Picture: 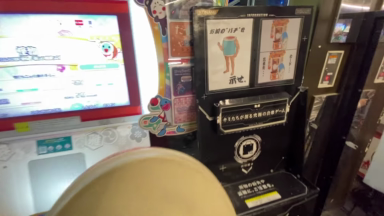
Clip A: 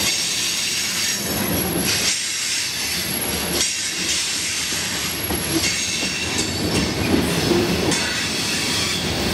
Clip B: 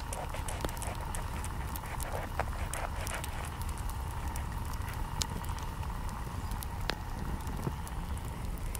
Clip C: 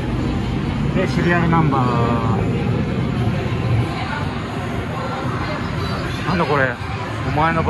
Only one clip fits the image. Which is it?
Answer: C